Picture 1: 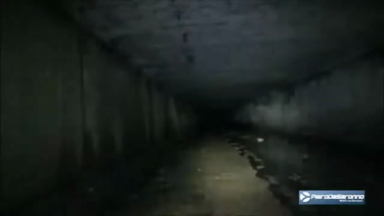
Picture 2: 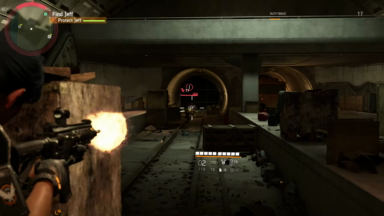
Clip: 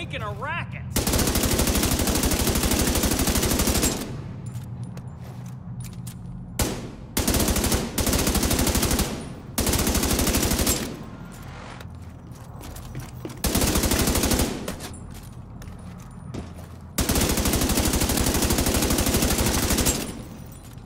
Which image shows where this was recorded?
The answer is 2